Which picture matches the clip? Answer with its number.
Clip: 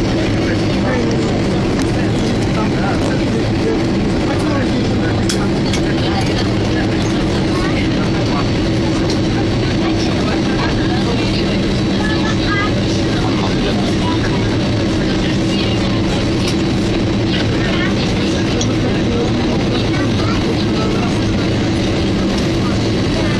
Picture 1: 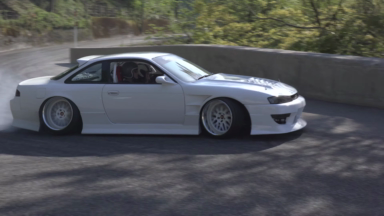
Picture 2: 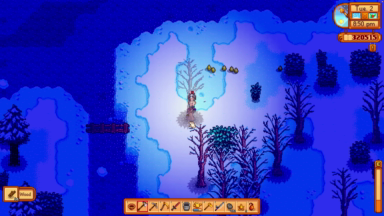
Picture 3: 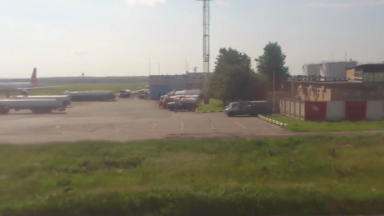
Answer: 3